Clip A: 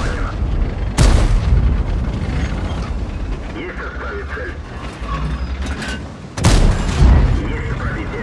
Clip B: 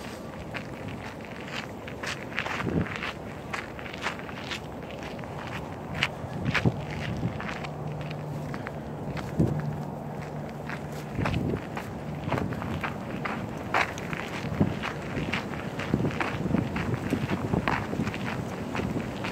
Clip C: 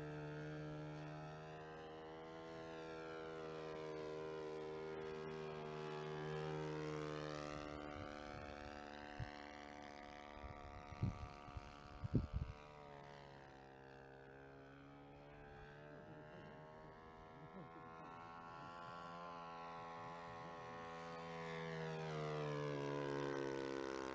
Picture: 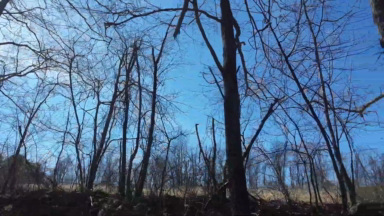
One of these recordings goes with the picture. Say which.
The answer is B